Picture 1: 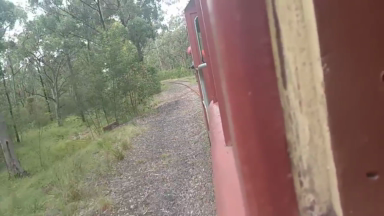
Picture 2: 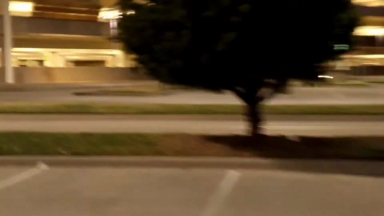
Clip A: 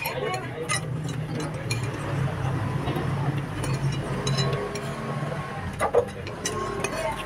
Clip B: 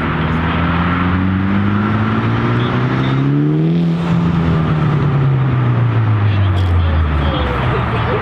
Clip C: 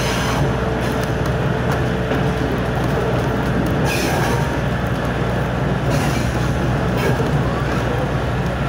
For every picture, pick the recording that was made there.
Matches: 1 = C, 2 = B